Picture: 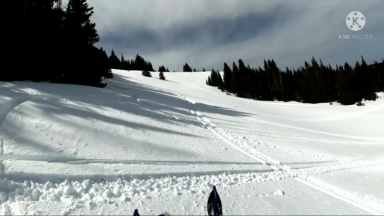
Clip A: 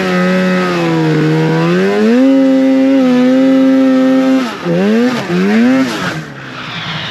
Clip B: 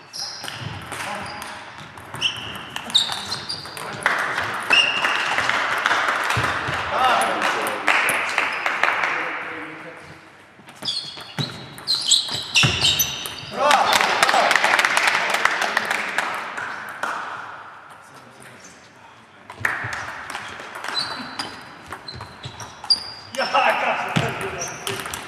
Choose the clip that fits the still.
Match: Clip A